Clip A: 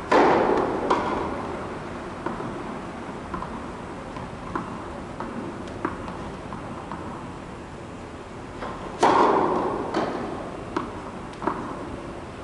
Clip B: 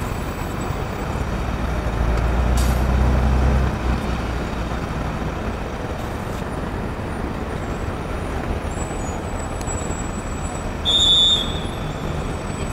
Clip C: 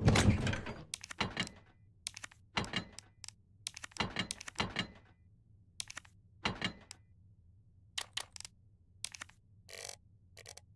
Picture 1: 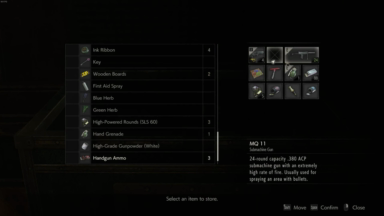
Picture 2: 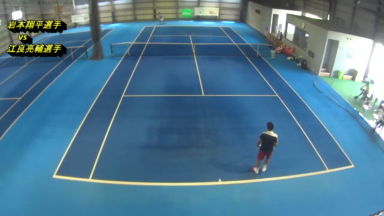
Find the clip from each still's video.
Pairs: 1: C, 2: A